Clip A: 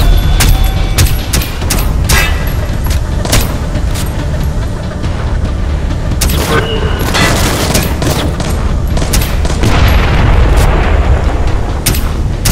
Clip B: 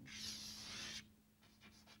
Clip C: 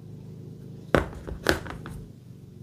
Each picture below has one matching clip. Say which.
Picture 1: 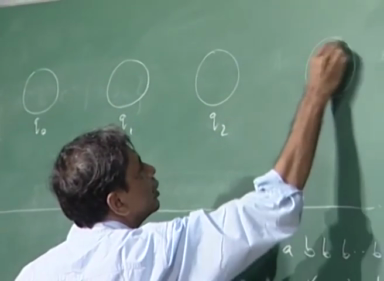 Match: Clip B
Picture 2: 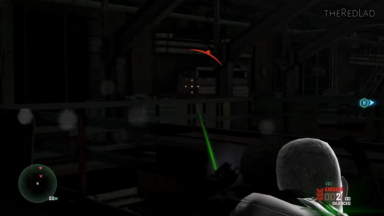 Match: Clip A